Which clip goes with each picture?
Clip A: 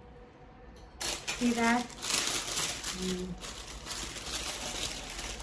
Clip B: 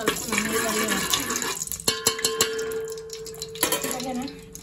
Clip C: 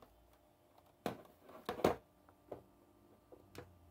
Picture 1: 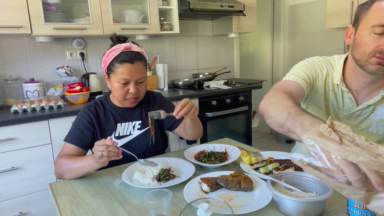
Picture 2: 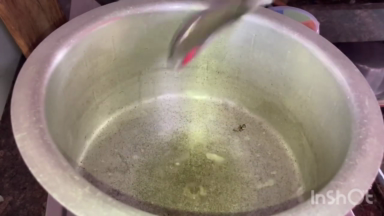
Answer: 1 A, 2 B